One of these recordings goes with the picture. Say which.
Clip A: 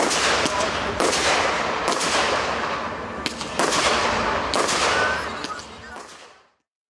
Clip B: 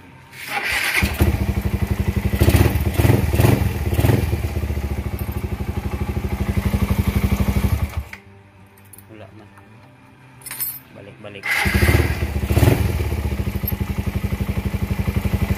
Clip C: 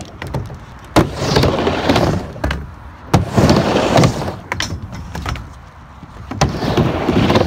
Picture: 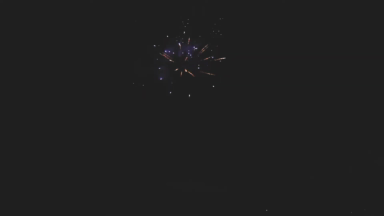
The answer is A